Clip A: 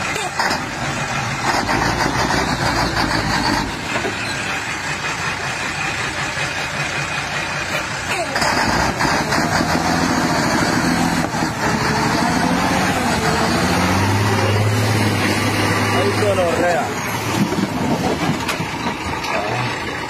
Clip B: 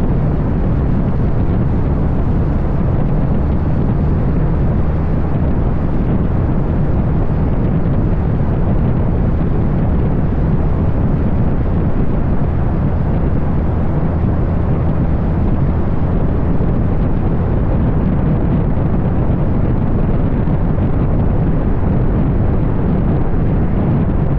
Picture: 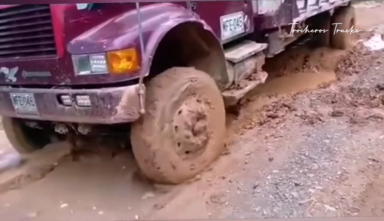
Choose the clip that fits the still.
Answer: A